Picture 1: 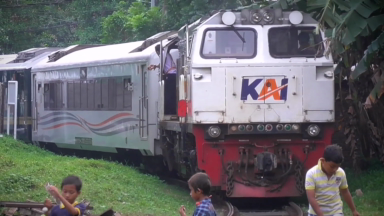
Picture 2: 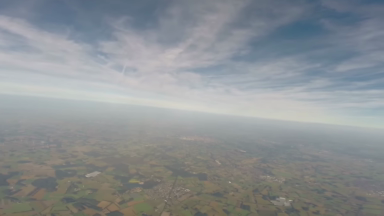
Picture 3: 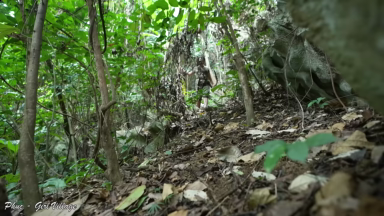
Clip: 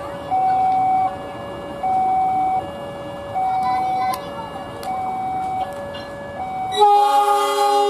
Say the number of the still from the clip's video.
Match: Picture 1